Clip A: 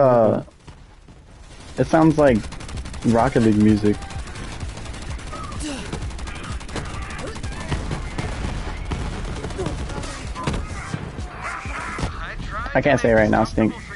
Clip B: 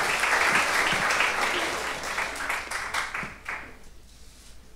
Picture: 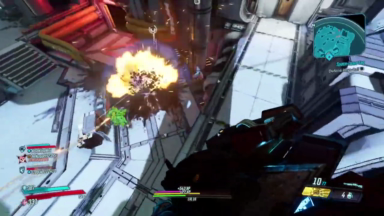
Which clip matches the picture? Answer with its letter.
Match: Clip A